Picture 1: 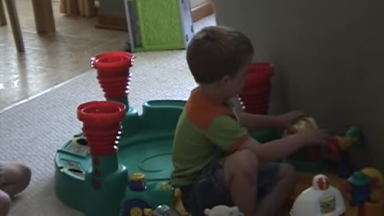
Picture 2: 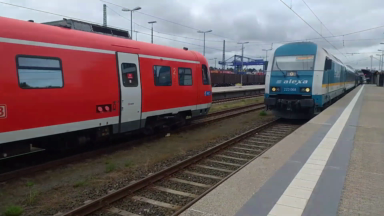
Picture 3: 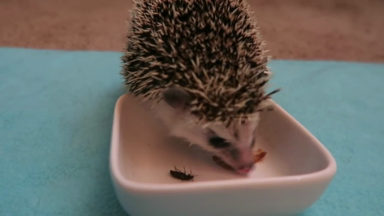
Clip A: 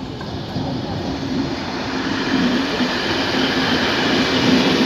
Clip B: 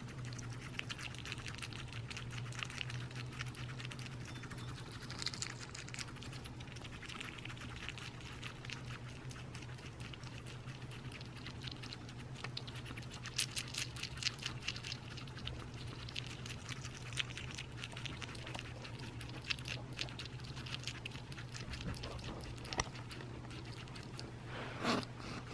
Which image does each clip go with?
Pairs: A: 2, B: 3